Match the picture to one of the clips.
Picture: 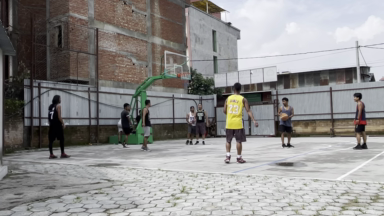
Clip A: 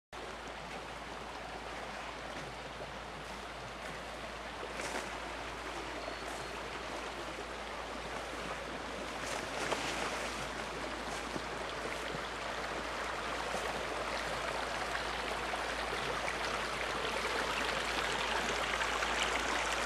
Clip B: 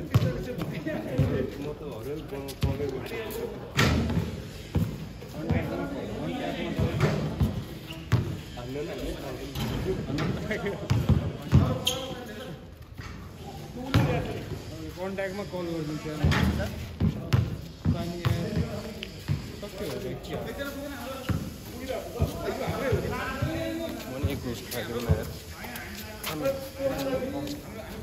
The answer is B